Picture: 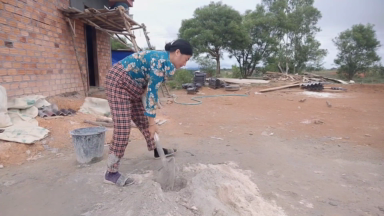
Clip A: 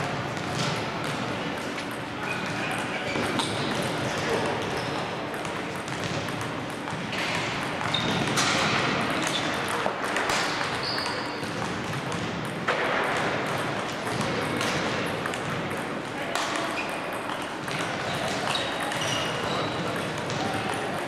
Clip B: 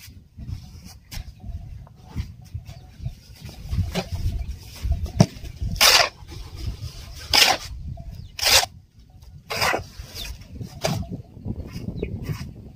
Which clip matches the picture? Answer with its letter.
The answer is B